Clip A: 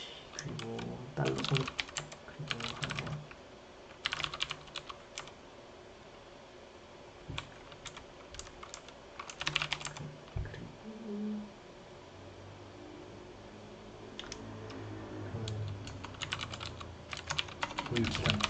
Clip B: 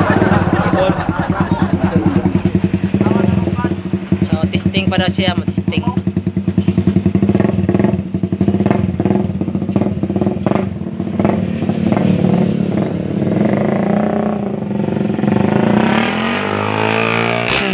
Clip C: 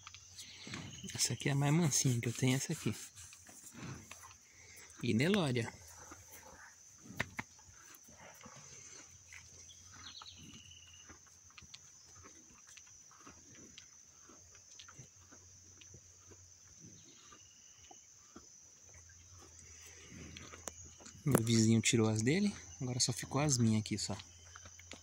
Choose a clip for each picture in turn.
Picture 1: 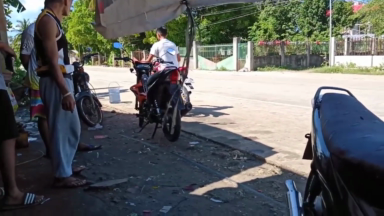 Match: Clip B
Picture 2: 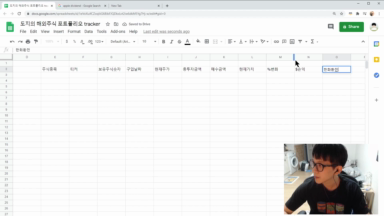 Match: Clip A